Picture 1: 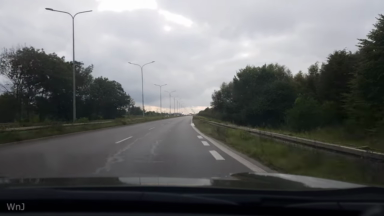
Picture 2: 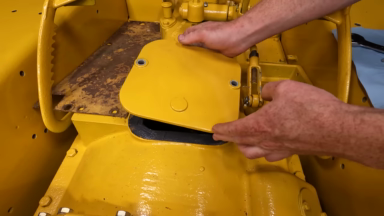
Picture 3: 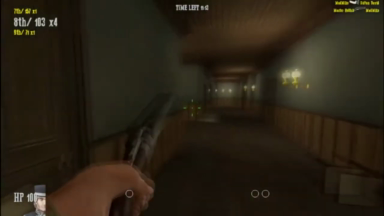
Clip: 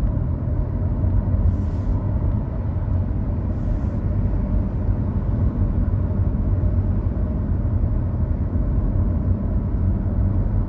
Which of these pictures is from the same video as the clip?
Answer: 1